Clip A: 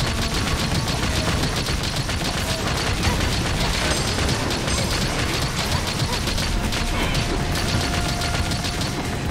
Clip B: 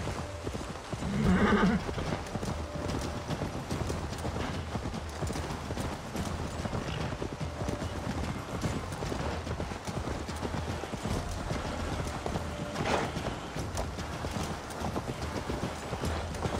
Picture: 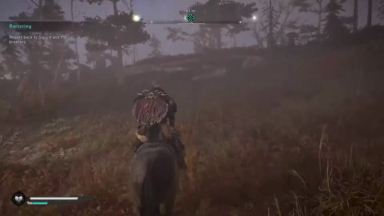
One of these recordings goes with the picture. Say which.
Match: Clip B